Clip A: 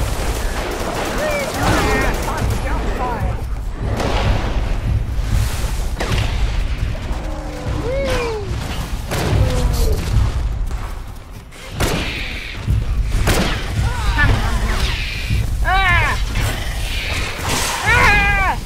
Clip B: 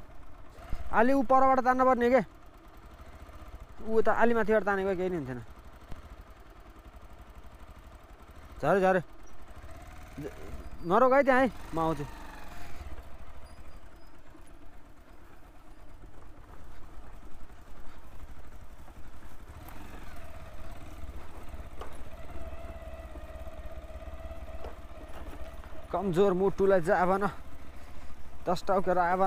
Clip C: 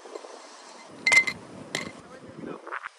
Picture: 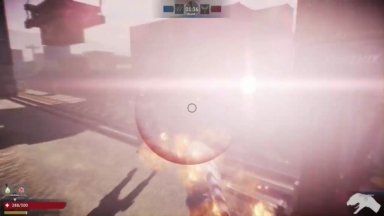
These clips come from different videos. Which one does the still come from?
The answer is A